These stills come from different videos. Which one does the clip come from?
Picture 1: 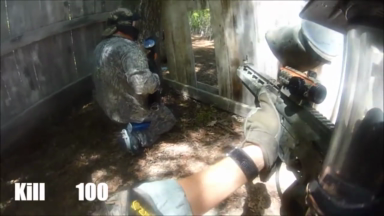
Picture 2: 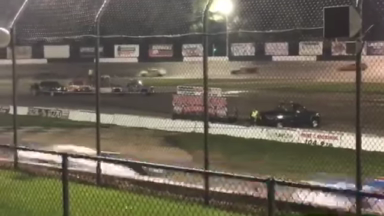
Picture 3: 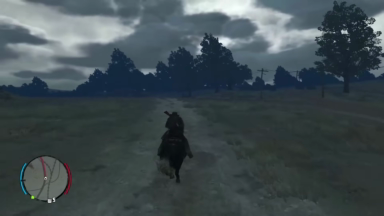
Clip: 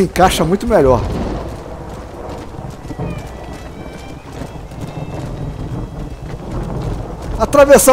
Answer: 3